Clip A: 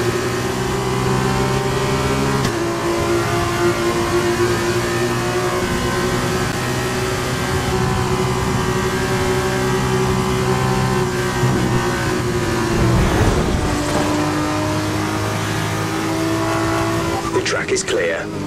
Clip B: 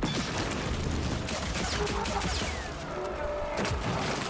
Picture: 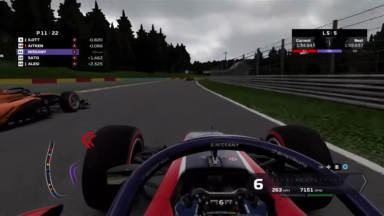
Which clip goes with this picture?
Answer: A